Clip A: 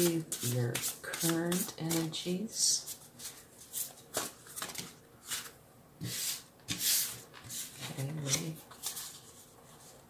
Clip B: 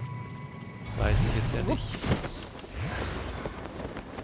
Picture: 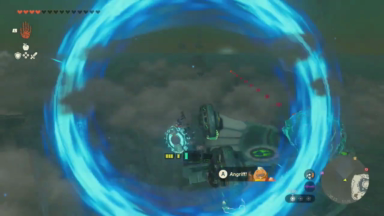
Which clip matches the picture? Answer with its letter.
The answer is B